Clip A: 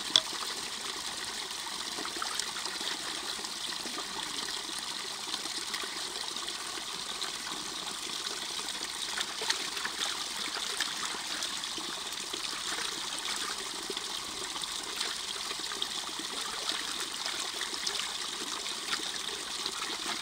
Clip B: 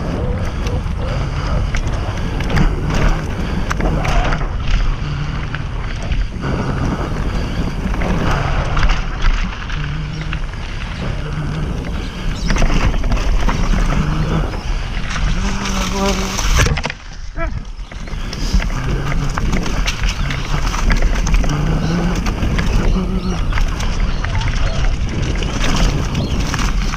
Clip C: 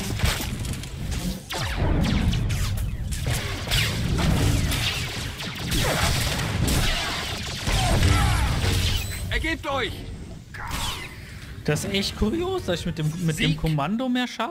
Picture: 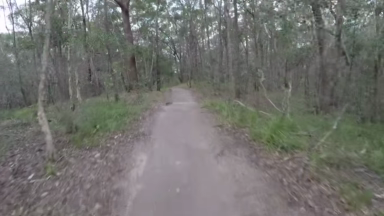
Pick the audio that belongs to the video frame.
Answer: B